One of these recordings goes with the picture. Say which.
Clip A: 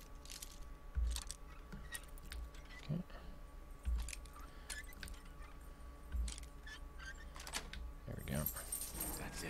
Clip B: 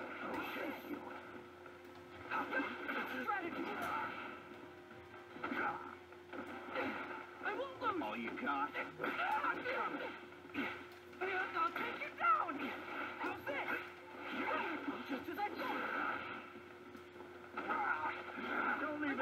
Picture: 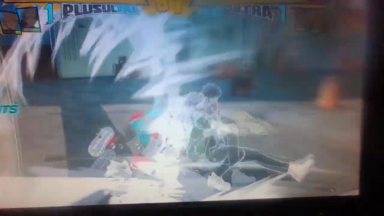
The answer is B